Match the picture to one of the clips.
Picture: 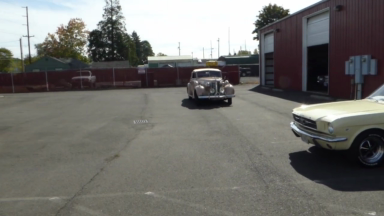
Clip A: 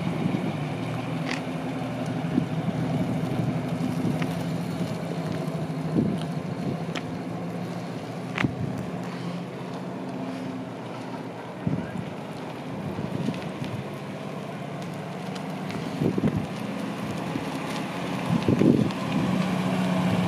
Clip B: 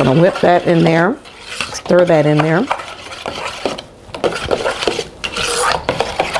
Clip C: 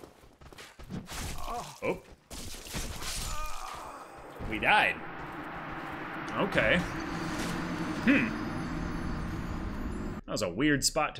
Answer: A